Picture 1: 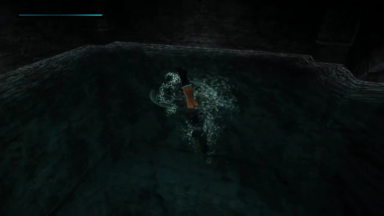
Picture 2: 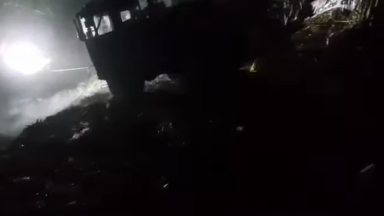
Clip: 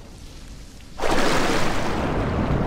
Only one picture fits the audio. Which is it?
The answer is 1